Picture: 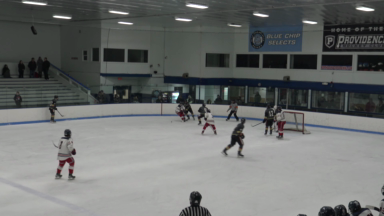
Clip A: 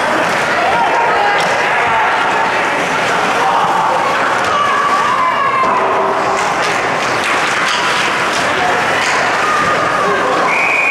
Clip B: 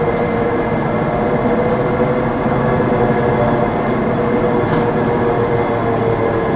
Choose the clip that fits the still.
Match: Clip A